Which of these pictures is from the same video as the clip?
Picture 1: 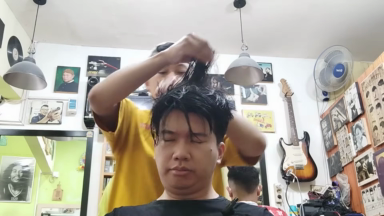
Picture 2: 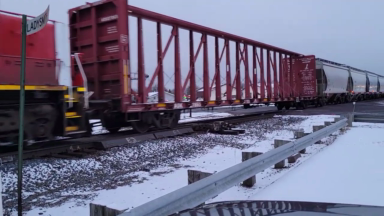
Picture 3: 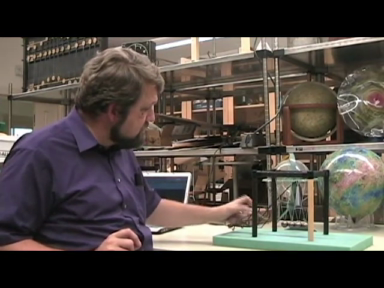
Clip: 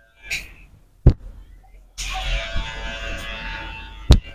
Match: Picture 1